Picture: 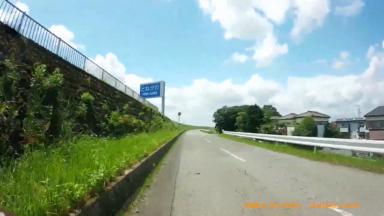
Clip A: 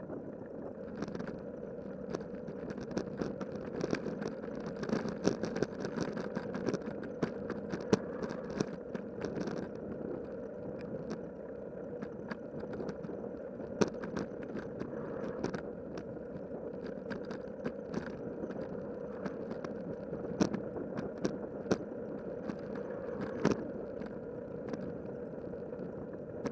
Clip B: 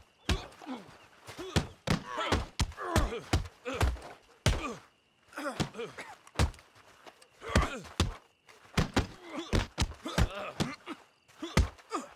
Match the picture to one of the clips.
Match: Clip A